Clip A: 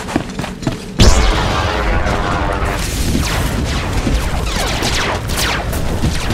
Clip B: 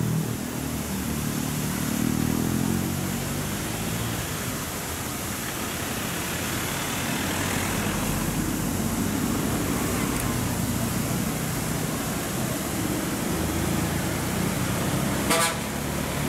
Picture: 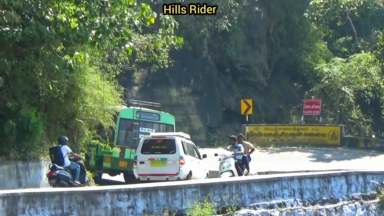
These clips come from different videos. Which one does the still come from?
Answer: B